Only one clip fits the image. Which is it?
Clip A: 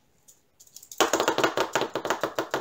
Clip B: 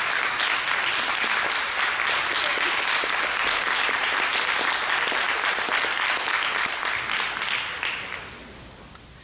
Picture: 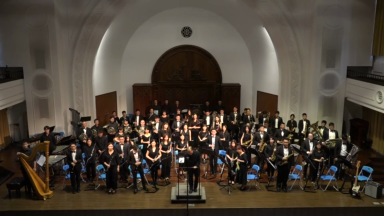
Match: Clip B